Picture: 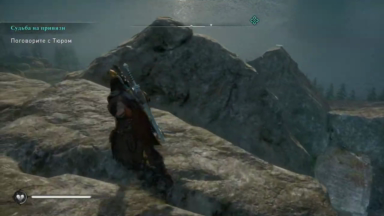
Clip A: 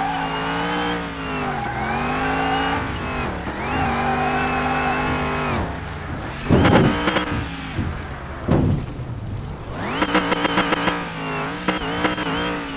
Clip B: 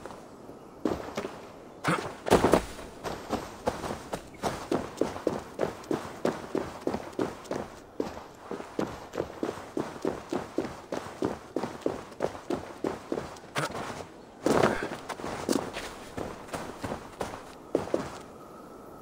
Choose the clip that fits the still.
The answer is B